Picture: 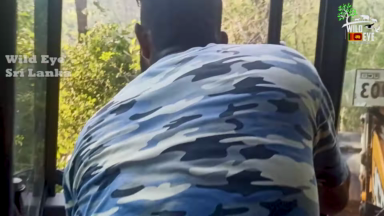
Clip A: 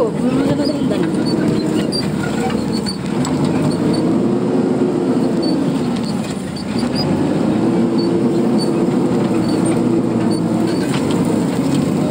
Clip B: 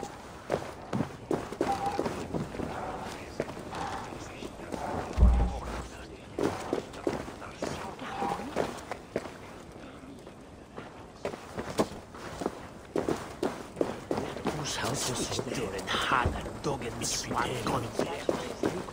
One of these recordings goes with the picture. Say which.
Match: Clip A